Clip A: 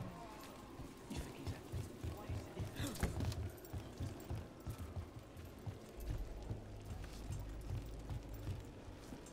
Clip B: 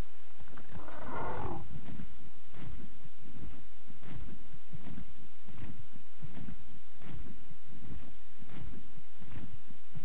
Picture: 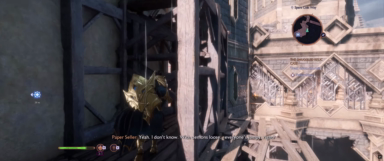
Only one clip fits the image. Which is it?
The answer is A